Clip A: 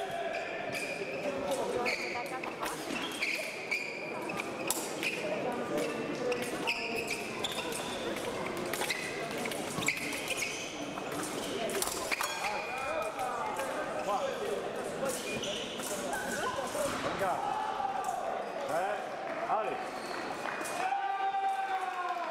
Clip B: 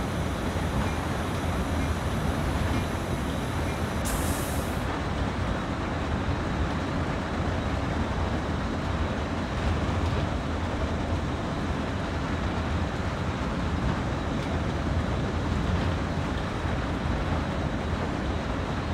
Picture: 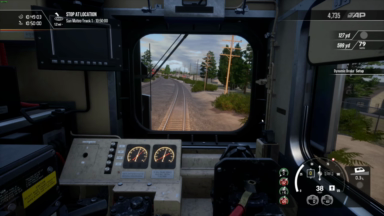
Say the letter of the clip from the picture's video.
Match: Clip B